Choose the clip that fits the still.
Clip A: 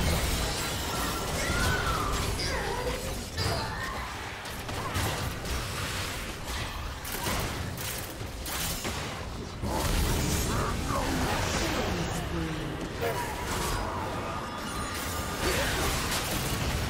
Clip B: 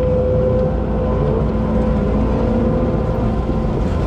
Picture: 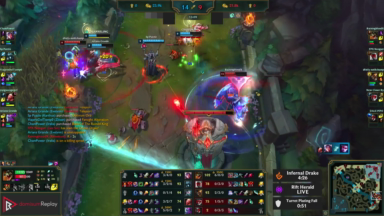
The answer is A